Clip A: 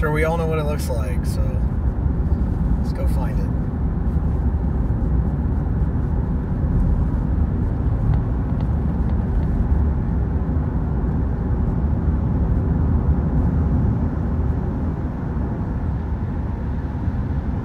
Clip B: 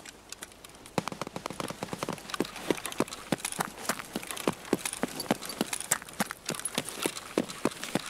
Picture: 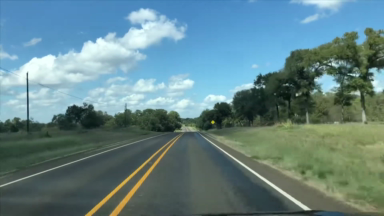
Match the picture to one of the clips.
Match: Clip A